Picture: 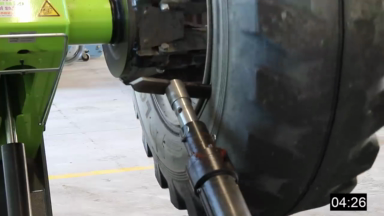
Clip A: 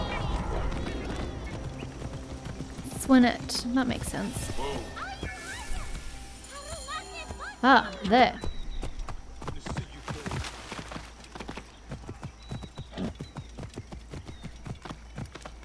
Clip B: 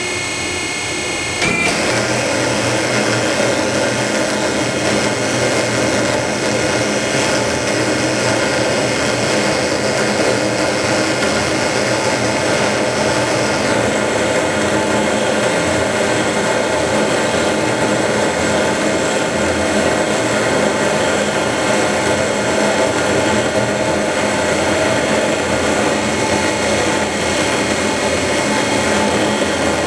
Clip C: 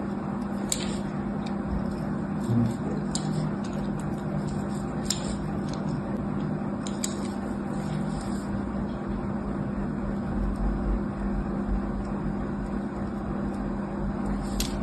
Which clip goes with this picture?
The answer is B